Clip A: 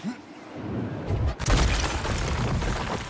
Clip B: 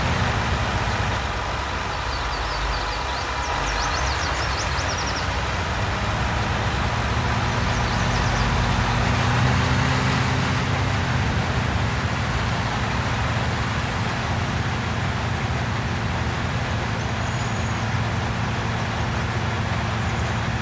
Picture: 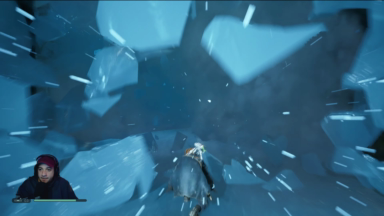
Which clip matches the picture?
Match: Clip A